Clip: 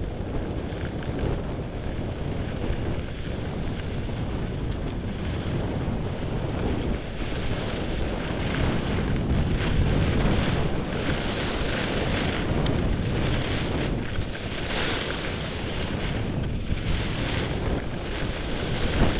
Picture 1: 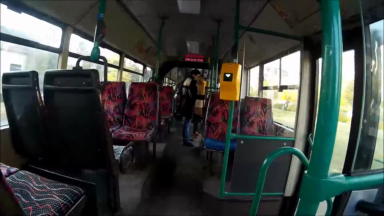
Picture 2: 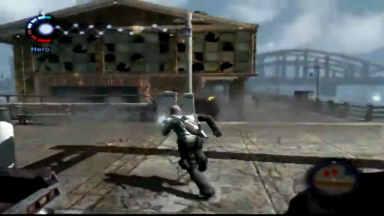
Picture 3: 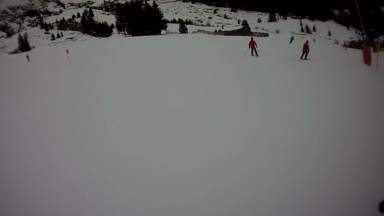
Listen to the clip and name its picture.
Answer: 3